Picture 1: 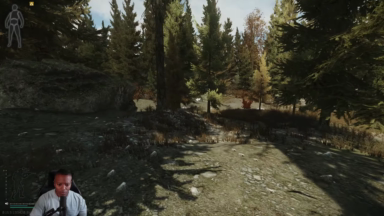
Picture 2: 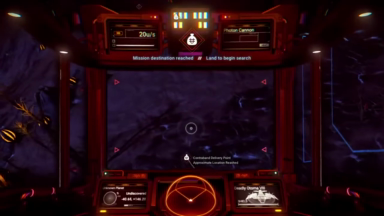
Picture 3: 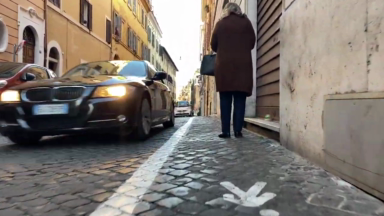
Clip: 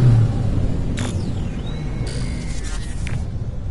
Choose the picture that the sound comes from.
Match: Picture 2